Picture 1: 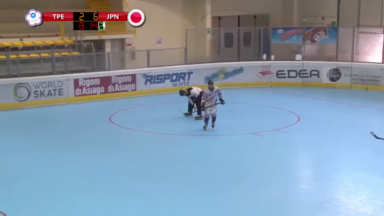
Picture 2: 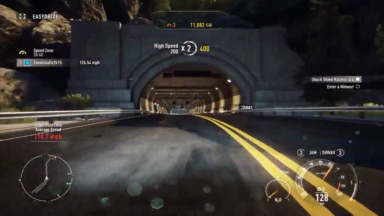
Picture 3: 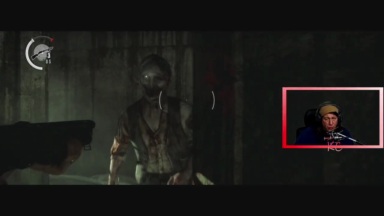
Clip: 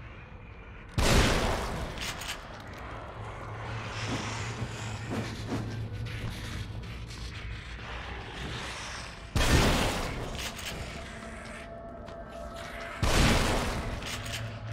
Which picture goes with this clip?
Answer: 3